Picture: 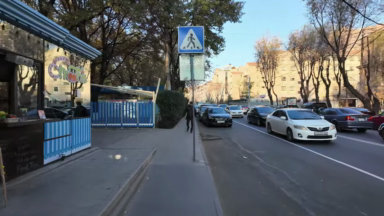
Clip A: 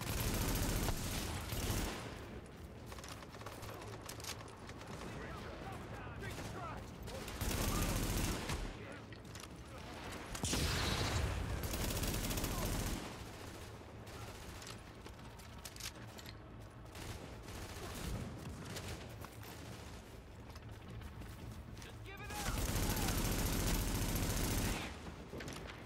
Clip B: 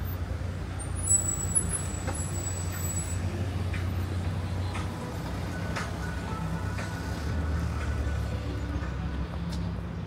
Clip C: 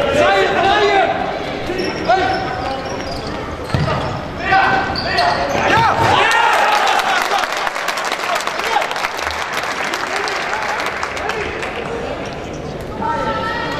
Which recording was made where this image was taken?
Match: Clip B